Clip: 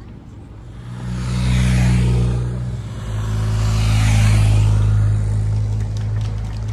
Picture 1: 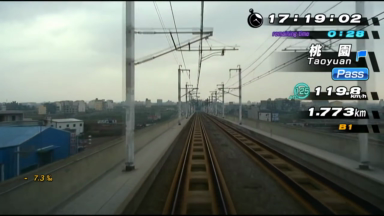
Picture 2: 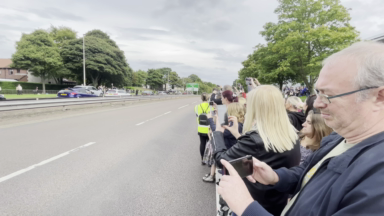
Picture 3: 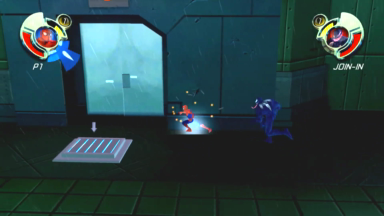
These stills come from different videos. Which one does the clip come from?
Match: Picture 2